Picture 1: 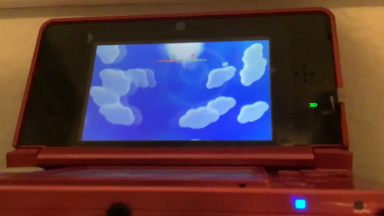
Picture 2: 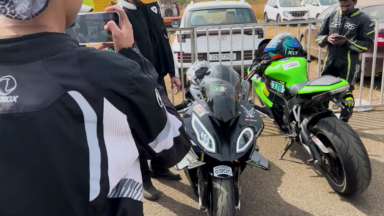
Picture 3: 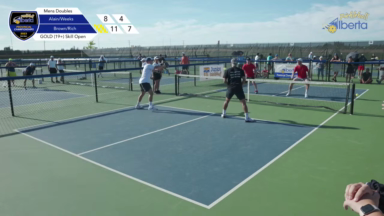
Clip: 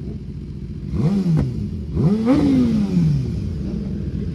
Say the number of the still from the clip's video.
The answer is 2